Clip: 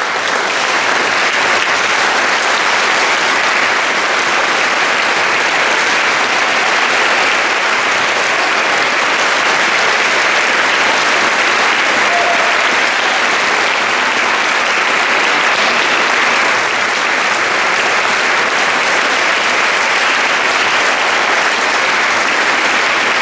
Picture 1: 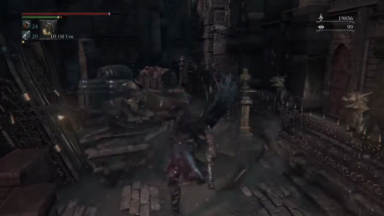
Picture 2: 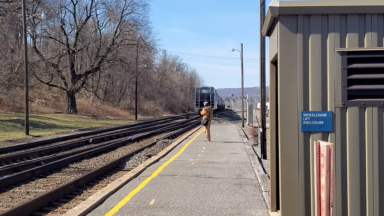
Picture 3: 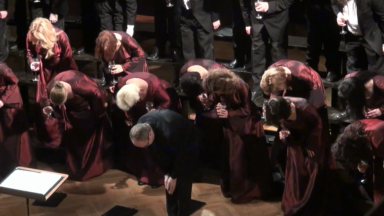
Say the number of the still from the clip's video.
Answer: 3